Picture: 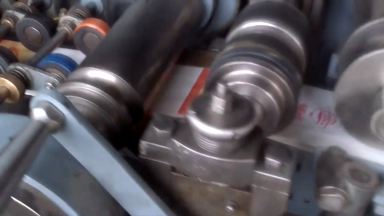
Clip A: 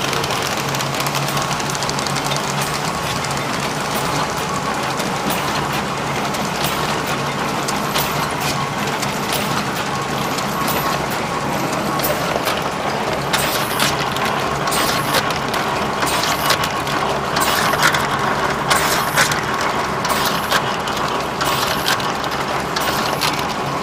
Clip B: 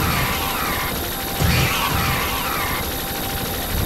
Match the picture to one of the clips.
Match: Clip A